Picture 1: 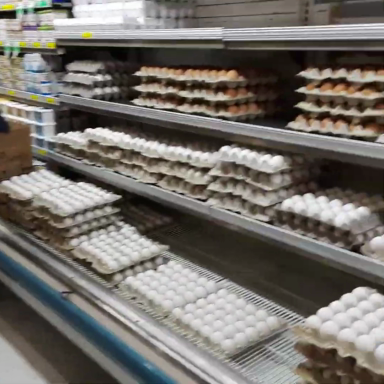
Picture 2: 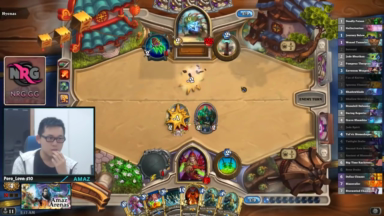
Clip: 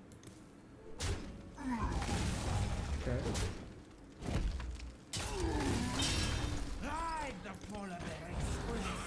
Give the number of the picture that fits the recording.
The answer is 2